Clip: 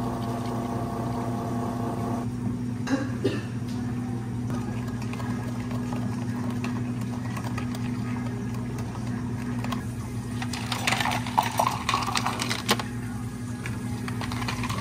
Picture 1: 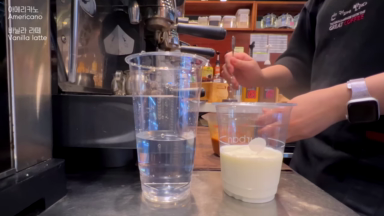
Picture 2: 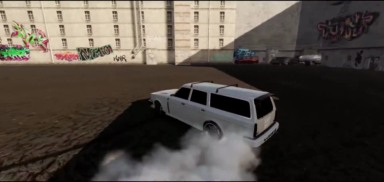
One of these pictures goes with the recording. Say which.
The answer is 1